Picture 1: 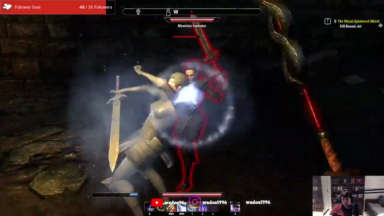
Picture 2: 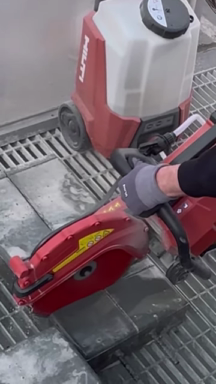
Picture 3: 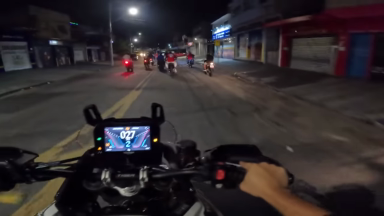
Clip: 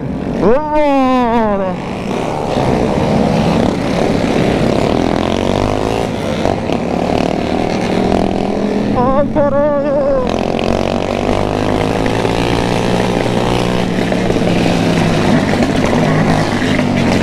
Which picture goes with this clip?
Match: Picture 3